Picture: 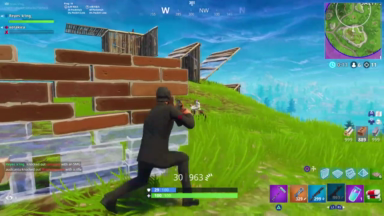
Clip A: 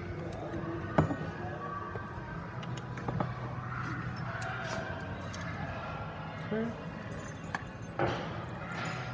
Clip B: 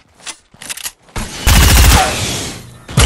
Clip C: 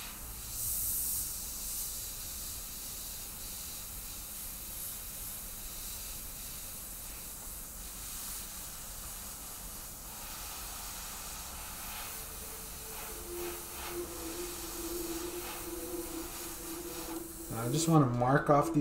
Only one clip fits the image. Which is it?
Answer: B